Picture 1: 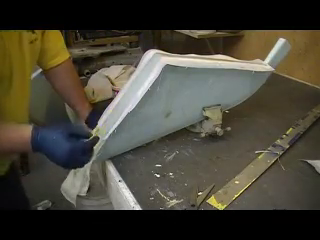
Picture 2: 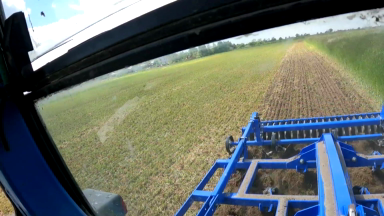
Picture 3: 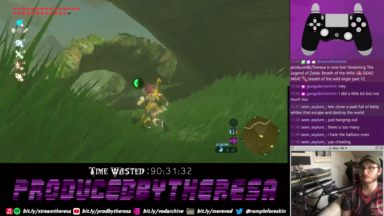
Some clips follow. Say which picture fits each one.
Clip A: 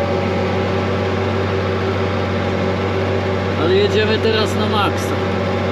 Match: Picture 2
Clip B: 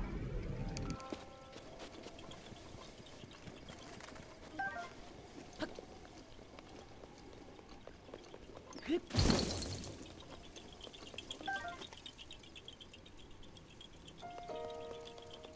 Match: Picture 3